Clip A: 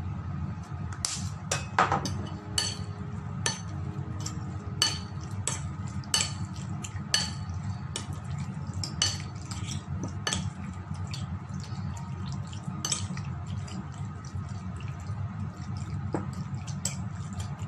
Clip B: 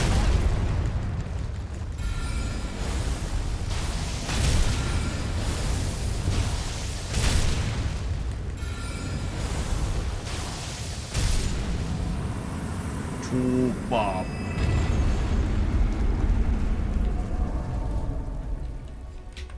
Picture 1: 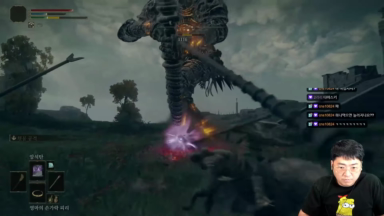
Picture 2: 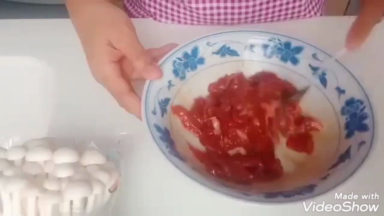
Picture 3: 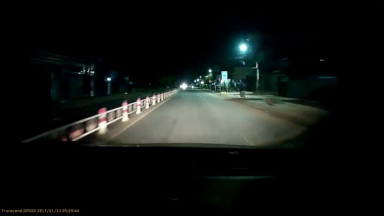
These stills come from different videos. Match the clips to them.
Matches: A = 2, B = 1